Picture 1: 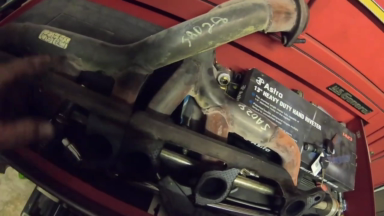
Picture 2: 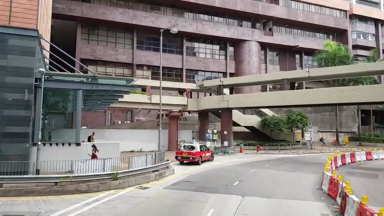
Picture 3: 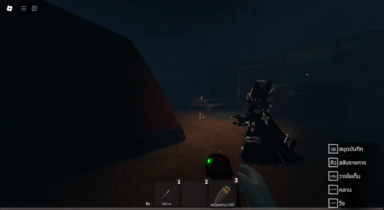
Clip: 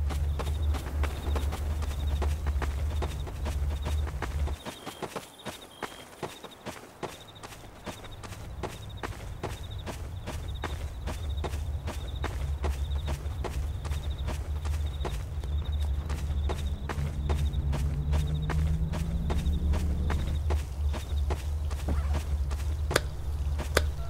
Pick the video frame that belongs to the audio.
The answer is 3